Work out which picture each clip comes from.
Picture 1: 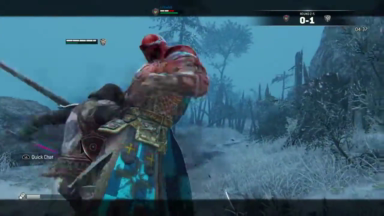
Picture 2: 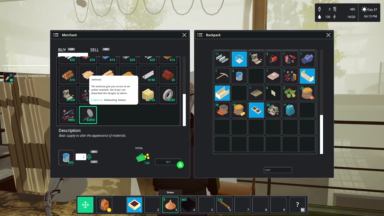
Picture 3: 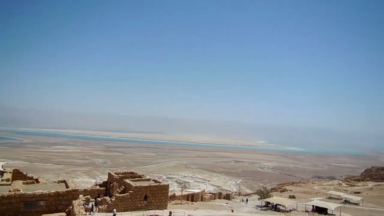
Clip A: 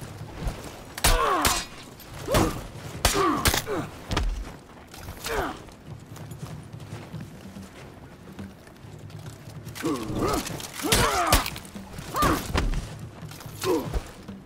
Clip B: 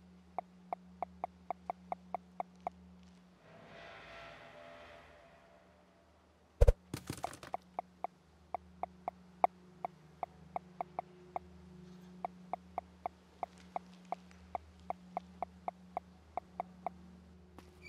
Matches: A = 1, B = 2